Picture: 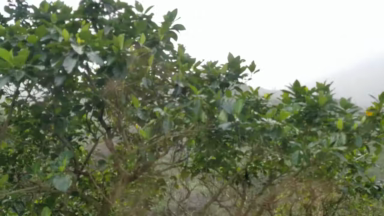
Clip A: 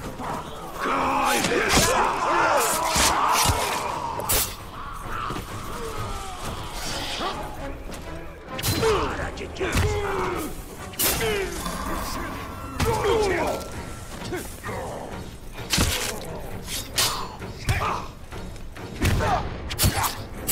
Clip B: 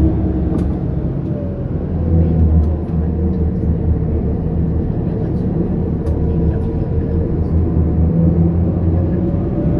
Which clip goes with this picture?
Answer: B